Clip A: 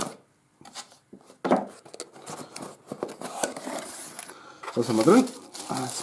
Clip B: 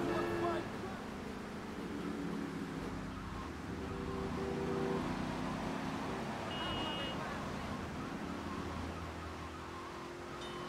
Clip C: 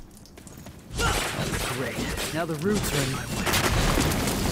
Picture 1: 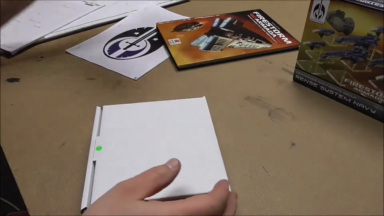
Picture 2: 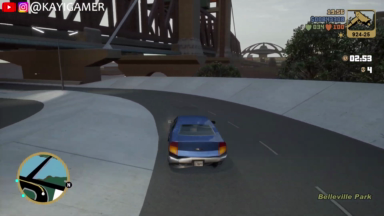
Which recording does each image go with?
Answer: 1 A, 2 B